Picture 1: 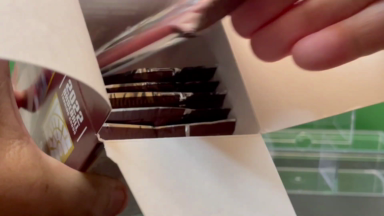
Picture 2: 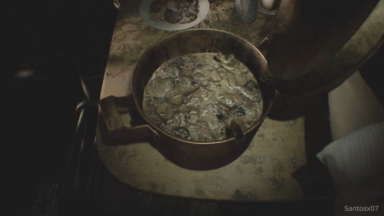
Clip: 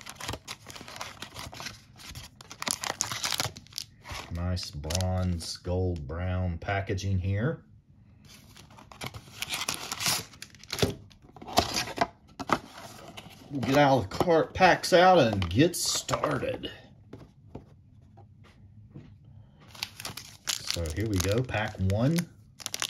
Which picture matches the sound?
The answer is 1